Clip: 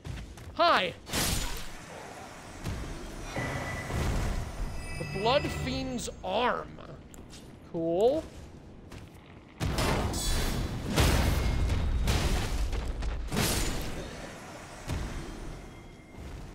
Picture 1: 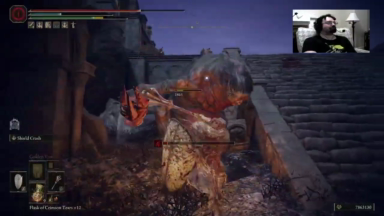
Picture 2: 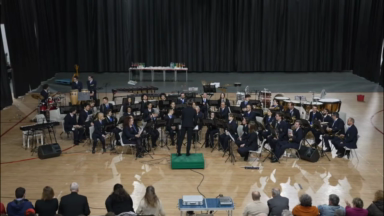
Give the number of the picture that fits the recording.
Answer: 1